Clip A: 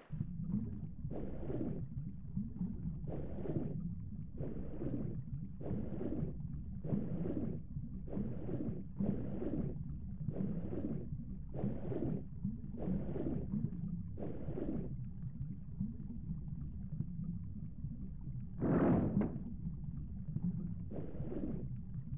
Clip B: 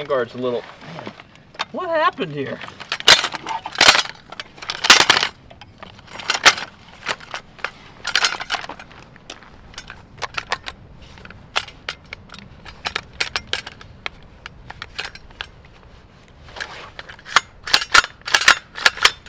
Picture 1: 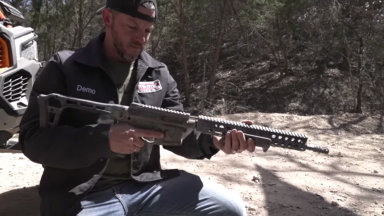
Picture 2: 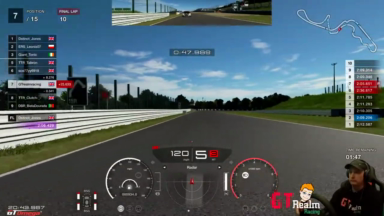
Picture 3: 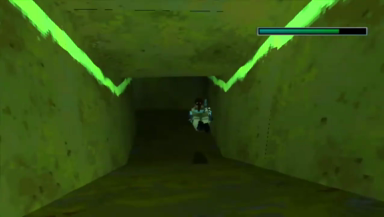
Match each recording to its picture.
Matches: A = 3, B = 1